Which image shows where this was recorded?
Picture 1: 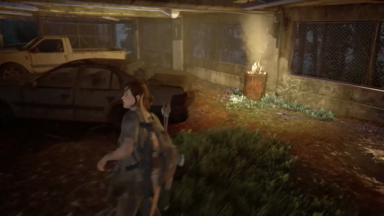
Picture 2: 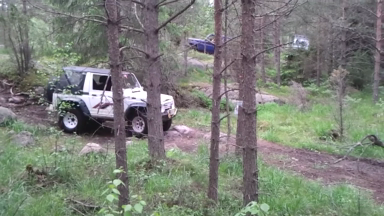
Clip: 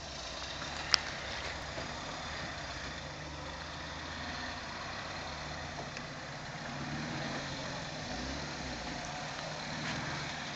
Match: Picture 2